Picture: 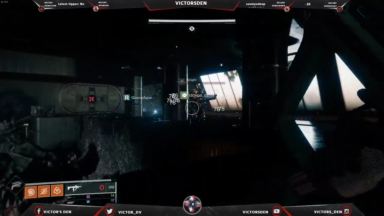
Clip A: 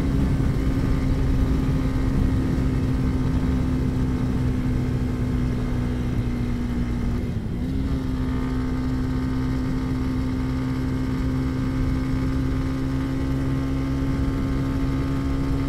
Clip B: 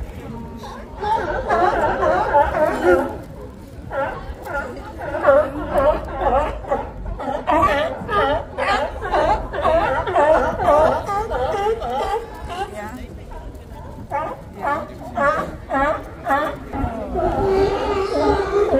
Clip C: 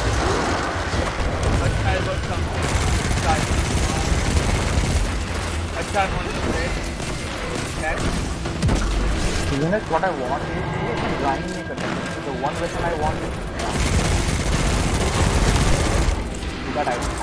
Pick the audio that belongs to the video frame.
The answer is C